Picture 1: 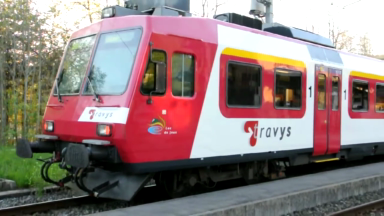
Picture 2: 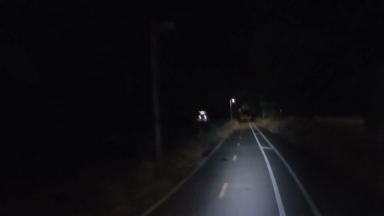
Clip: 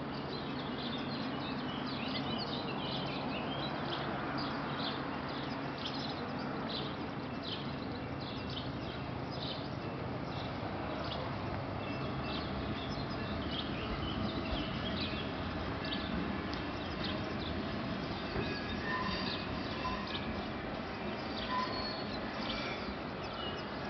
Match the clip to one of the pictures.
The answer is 1